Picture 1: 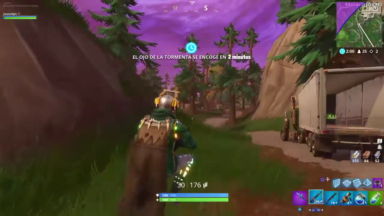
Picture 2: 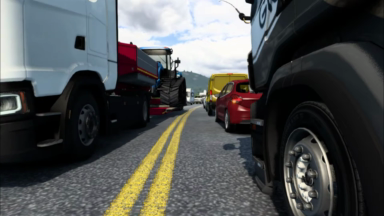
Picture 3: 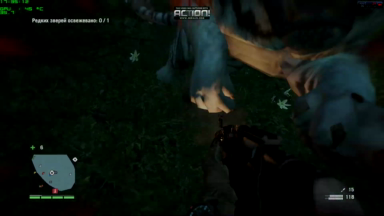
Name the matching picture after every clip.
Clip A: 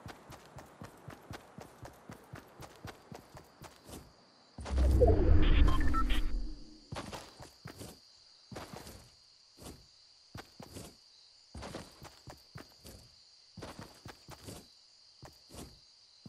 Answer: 1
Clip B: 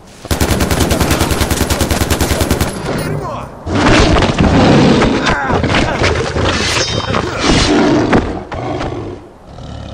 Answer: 3